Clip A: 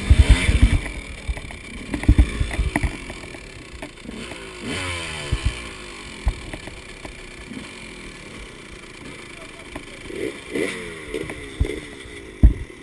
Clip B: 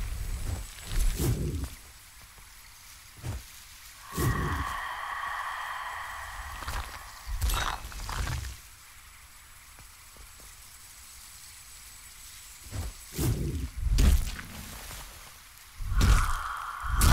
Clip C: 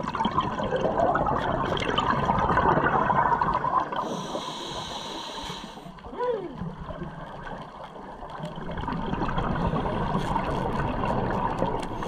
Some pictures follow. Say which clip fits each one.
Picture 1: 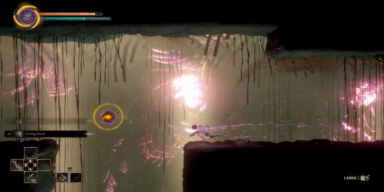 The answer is B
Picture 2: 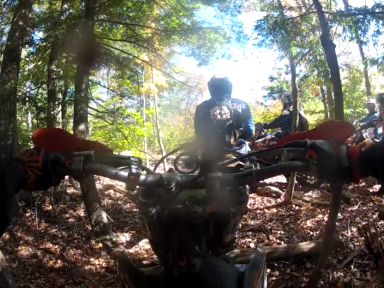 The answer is A